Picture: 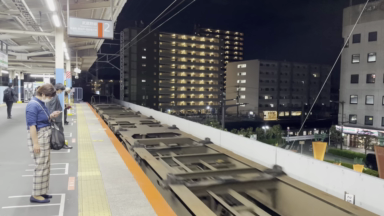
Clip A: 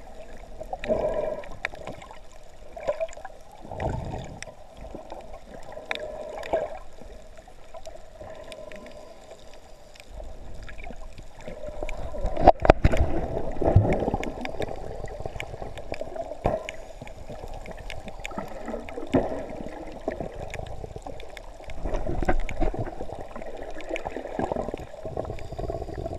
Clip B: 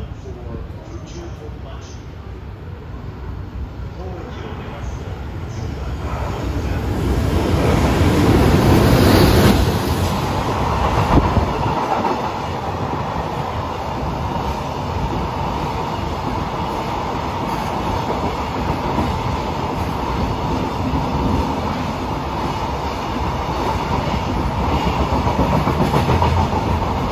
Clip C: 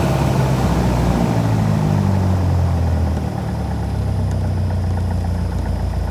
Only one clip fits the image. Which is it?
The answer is B